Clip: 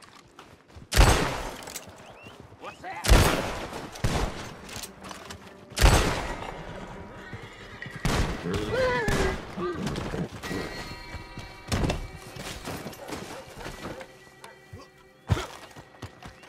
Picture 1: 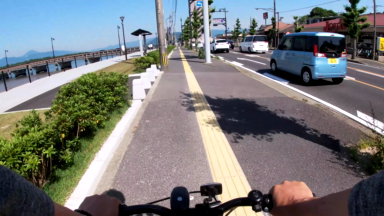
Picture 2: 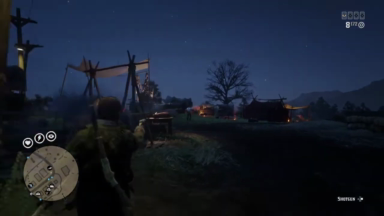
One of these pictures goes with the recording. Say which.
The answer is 2